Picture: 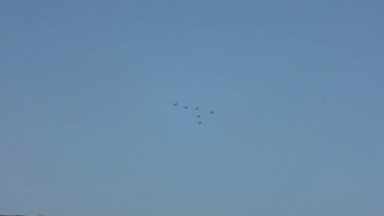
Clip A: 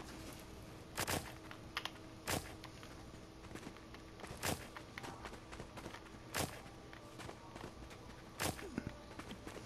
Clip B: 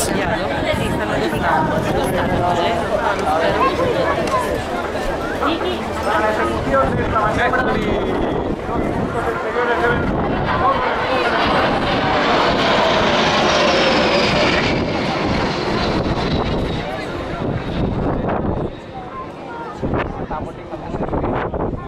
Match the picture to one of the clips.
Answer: B